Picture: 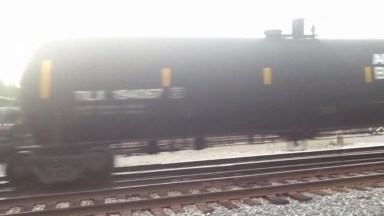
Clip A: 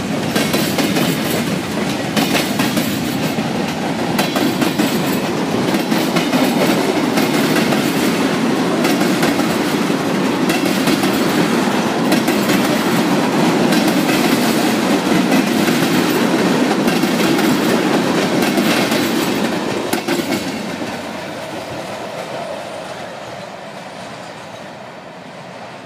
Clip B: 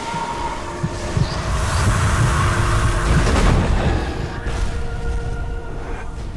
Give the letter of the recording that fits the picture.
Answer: A